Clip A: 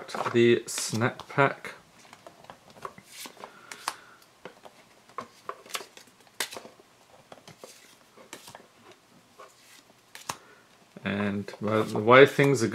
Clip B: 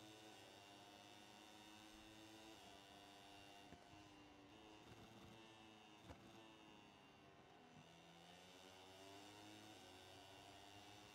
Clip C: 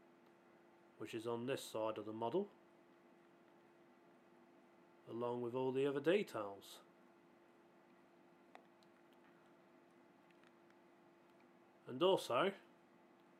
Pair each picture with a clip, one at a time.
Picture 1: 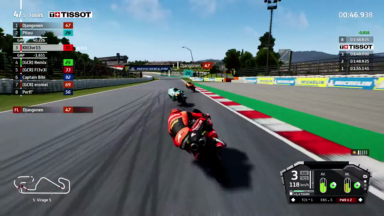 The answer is B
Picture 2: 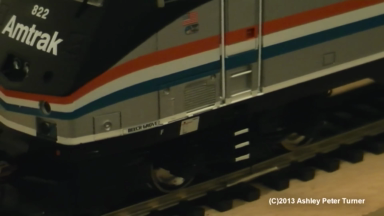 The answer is C